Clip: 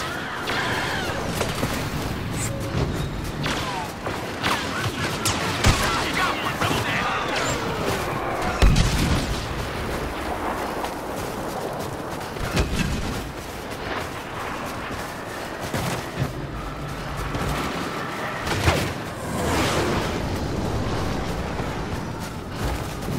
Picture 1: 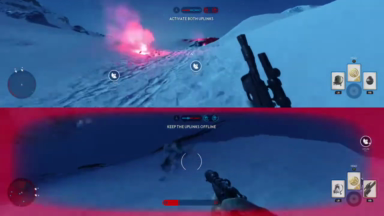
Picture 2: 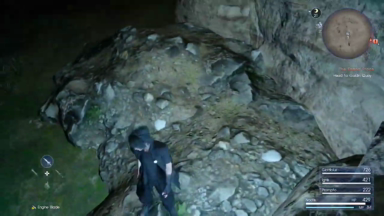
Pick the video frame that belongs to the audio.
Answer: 1